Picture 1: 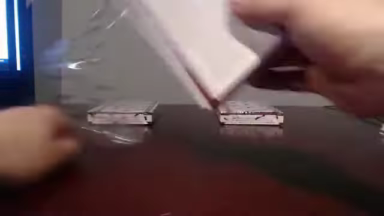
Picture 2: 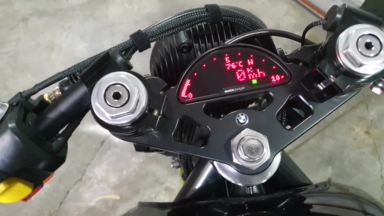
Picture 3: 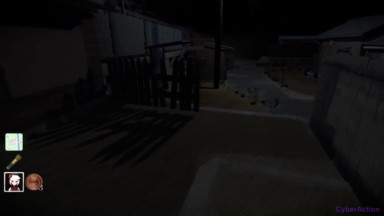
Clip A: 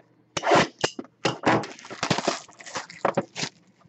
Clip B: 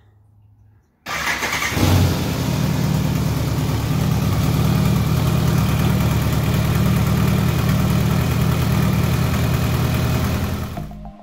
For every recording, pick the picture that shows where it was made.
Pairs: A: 1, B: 2